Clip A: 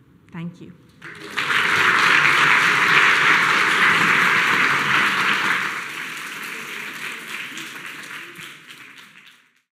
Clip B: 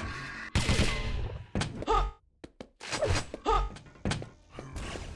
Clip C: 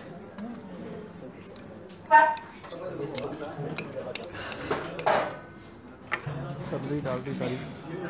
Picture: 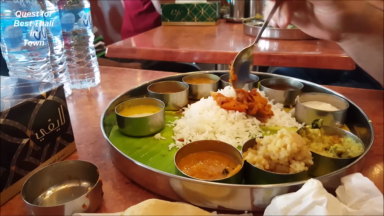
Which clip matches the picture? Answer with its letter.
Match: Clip C